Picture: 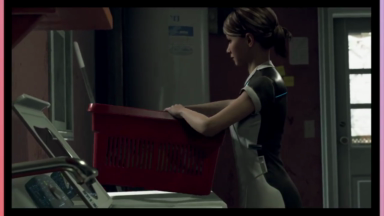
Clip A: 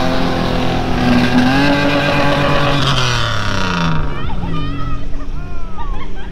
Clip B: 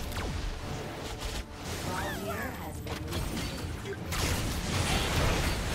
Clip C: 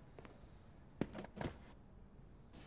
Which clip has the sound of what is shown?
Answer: C